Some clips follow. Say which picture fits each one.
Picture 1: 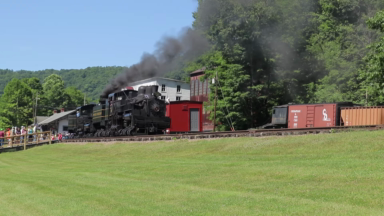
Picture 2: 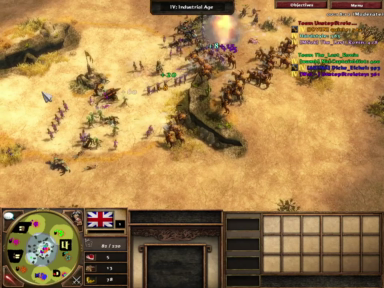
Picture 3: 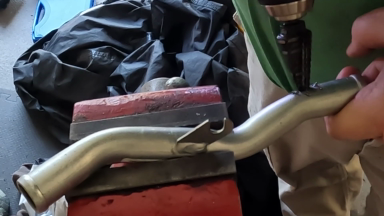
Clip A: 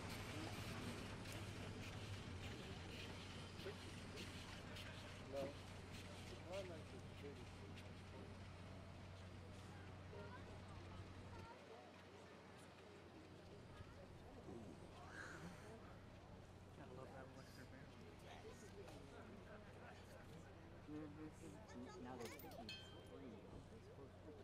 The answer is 1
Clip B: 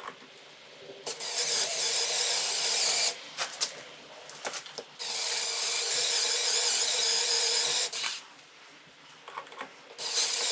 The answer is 3